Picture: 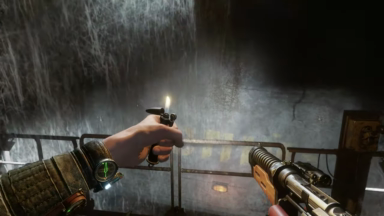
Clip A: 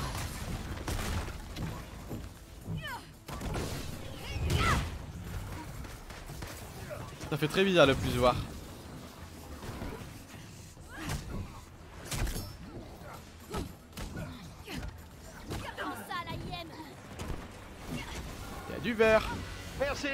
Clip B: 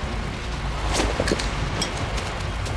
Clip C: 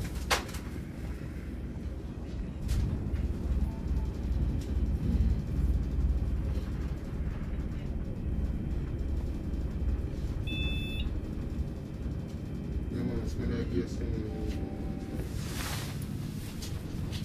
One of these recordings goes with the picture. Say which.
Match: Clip B